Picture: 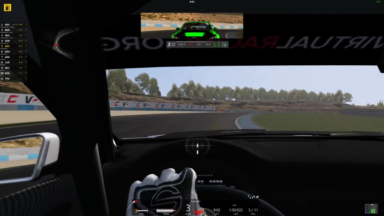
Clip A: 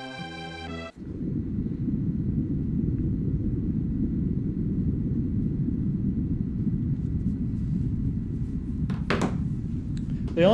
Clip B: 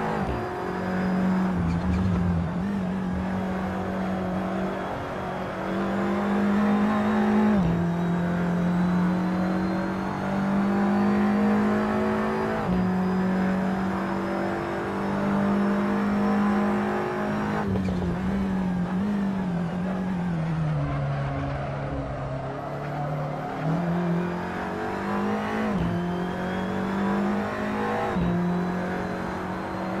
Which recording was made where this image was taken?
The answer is B